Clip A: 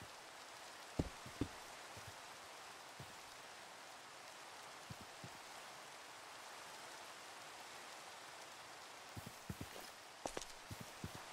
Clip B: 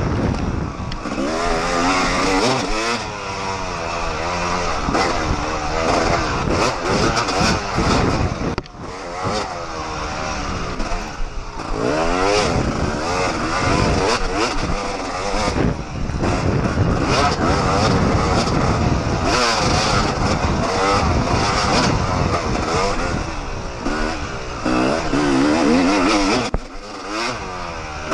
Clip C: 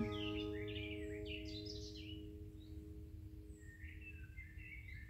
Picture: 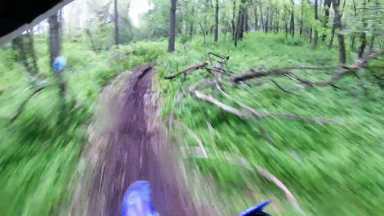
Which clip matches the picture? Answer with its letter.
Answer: B